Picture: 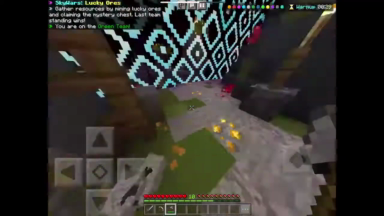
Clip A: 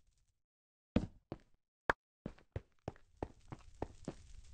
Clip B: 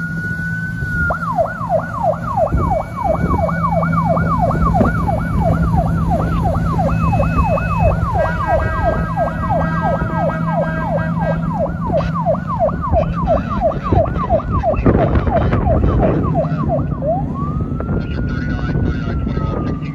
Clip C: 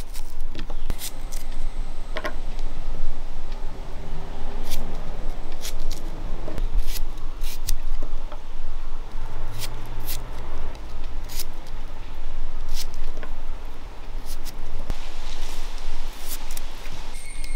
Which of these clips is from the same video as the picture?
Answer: A